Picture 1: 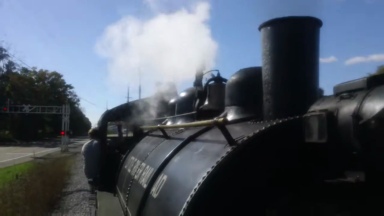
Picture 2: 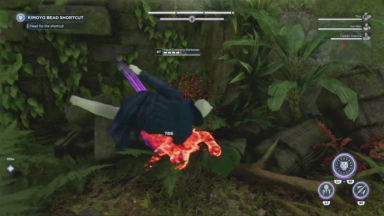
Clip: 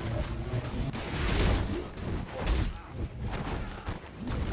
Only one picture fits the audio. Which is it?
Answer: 2